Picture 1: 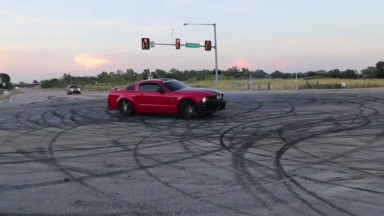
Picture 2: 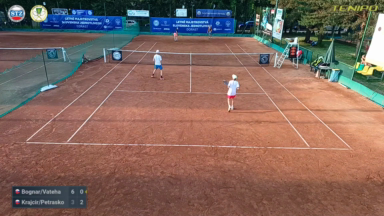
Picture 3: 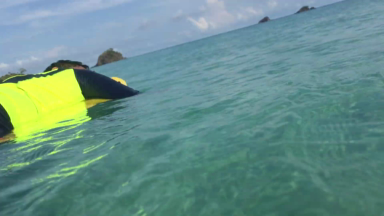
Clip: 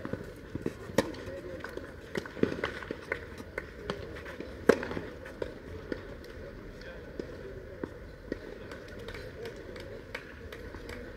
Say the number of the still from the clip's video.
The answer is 2